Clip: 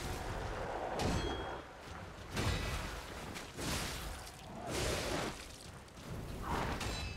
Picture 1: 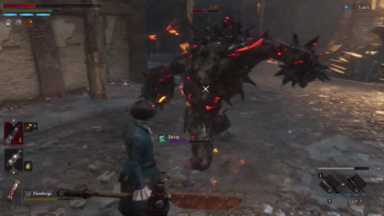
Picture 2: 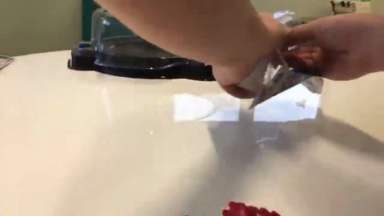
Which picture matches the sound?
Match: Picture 1